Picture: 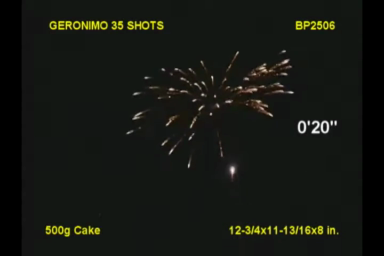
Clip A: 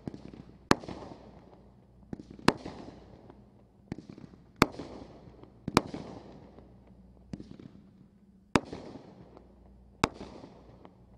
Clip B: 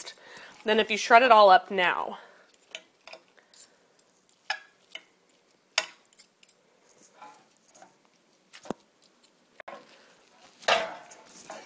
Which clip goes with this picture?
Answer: A